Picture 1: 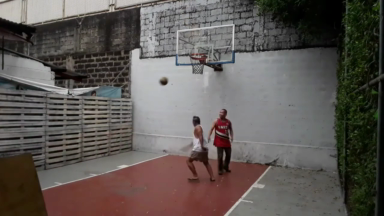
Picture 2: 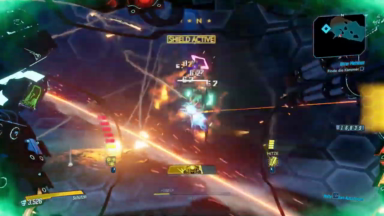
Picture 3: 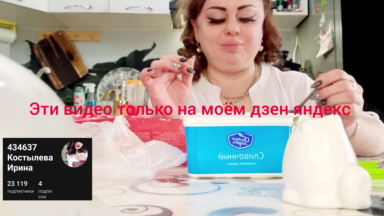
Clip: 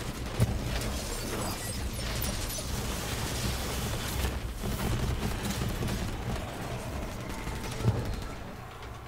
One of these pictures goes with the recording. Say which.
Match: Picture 2